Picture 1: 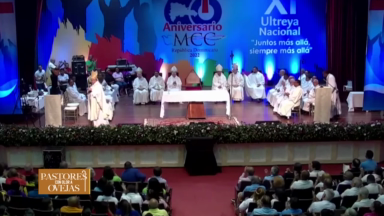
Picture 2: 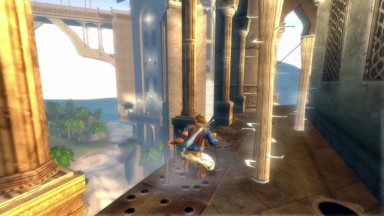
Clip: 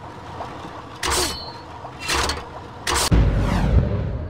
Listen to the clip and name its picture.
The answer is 2